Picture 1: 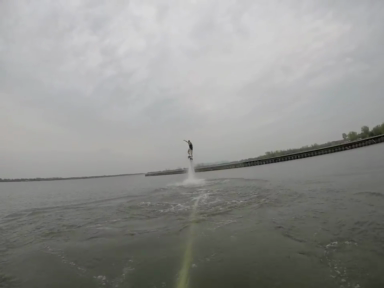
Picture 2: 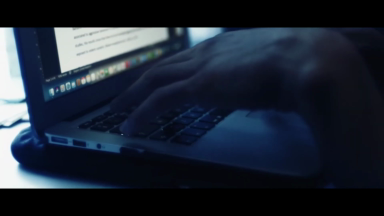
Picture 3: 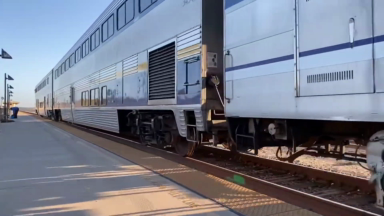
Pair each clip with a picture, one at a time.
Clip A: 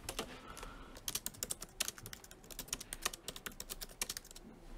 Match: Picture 2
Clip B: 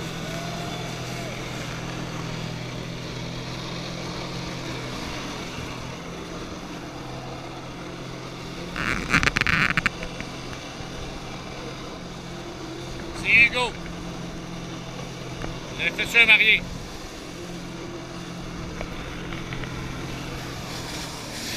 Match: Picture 1